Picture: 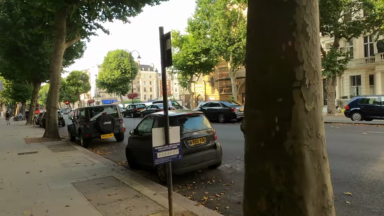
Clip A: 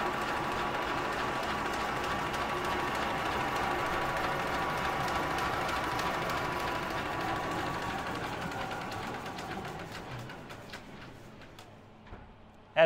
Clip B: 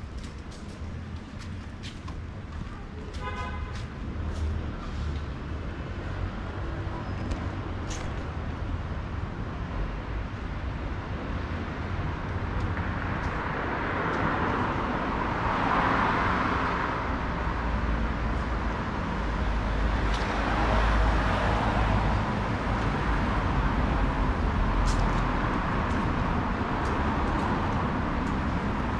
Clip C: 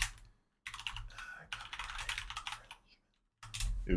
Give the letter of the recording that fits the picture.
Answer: B